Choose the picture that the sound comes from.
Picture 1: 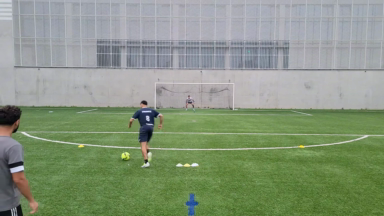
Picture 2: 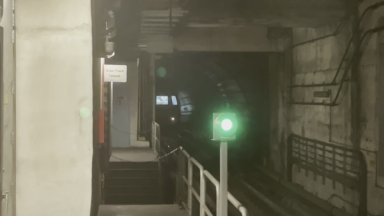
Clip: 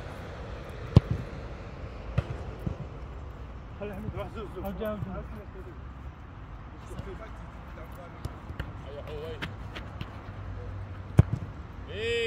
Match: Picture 1